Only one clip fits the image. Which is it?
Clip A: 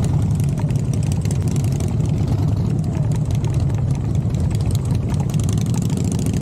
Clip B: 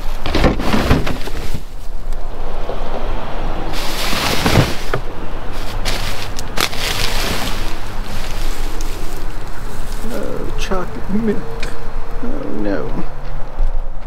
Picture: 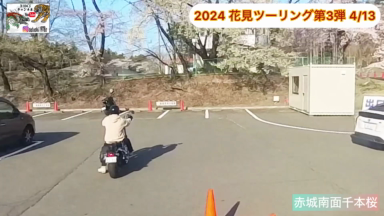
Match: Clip A